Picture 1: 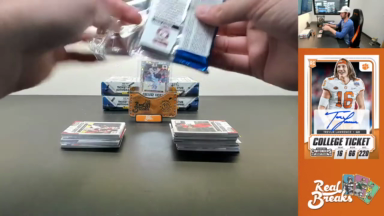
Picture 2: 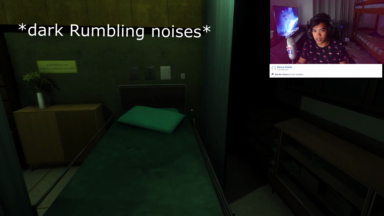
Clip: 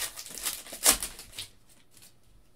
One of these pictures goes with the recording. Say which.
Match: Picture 1